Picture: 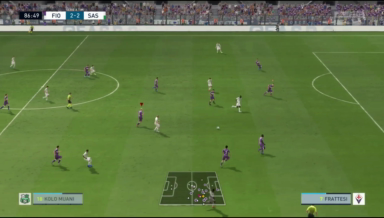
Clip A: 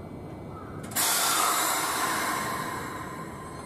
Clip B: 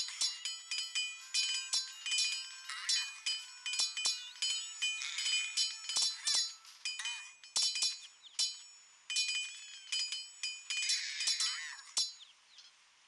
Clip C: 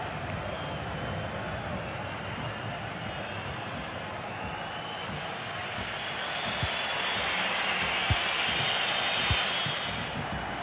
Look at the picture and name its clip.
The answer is C